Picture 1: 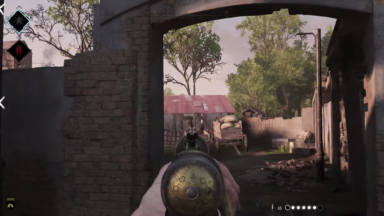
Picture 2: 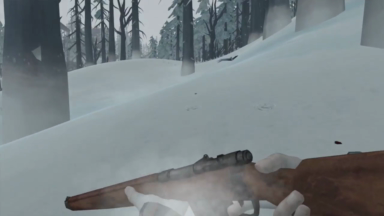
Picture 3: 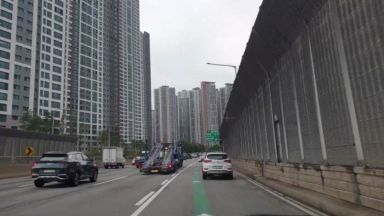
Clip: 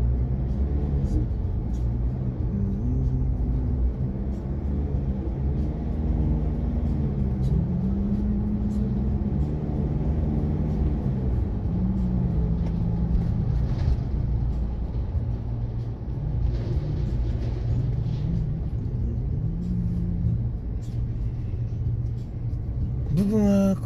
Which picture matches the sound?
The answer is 3